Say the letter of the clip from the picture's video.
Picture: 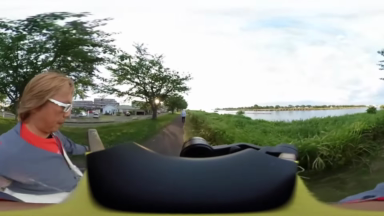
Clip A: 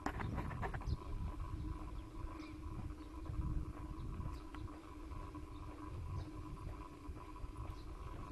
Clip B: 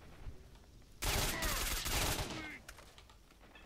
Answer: A